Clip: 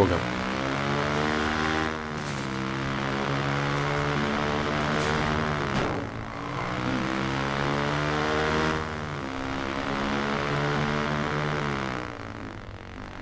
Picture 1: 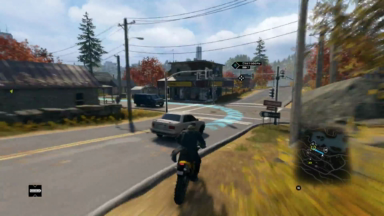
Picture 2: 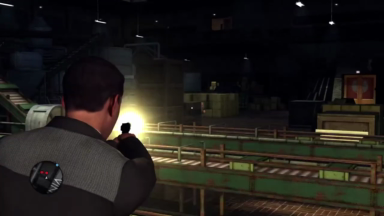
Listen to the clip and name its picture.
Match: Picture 1